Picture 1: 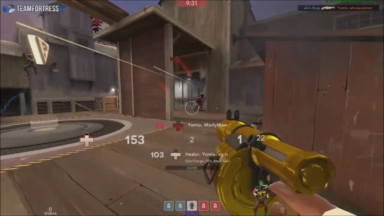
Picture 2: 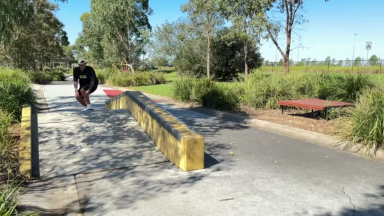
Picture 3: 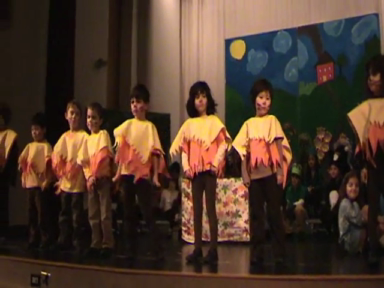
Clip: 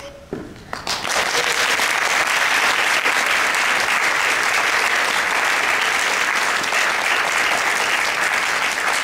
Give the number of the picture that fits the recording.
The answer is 3